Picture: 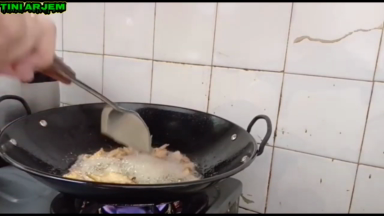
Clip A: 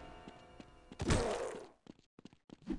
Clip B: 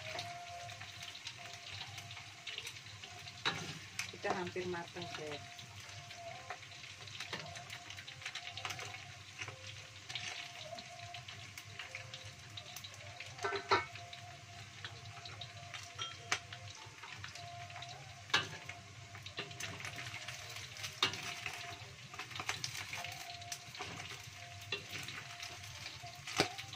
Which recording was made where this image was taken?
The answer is B